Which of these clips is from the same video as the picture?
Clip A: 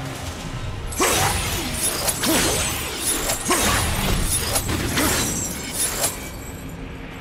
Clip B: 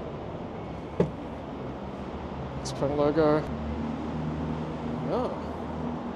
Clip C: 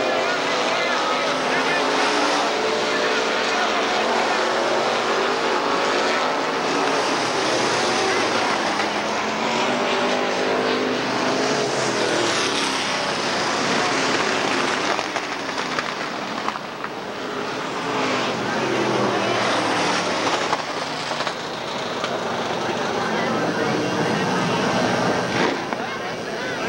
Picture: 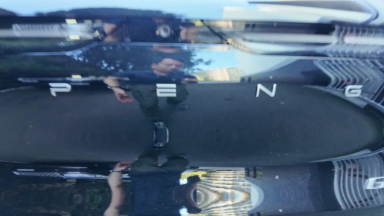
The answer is B